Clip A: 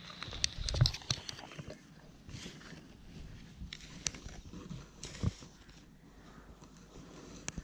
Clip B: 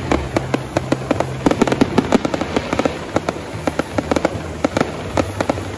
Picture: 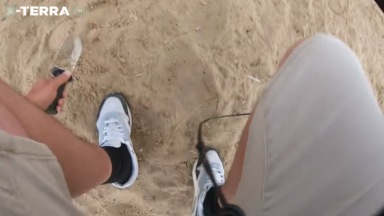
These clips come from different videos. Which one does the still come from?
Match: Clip A